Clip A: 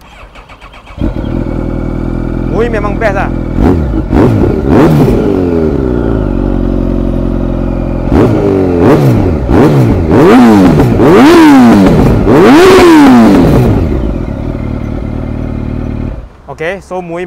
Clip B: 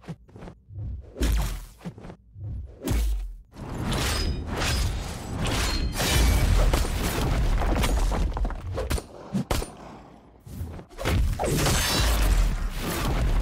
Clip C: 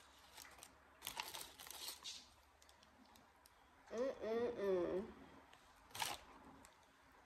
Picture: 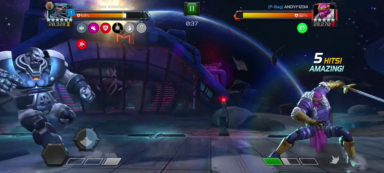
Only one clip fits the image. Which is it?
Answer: B